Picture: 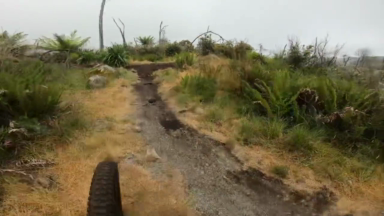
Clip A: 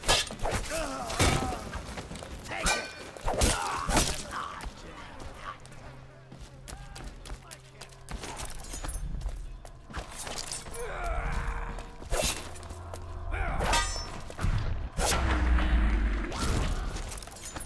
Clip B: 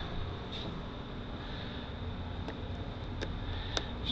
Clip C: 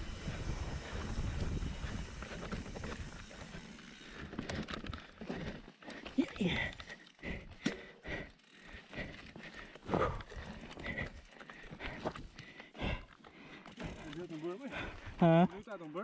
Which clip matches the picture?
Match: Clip C